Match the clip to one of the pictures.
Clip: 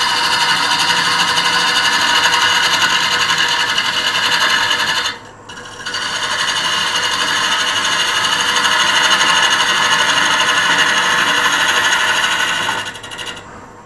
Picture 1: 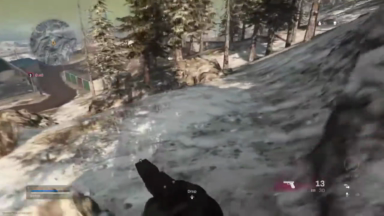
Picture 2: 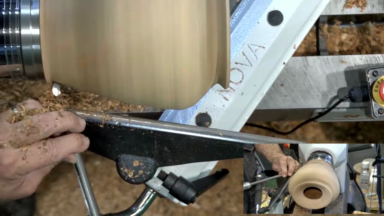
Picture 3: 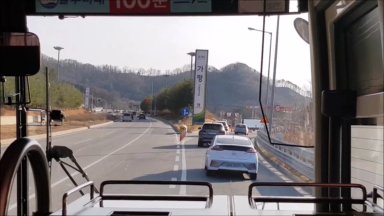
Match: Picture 2